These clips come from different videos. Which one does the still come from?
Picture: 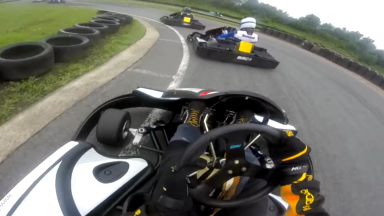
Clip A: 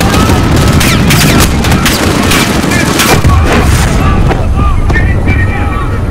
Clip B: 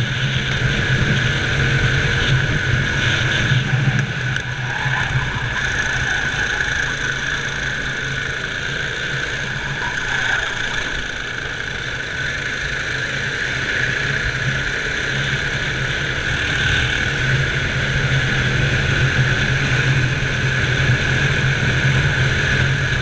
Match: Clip B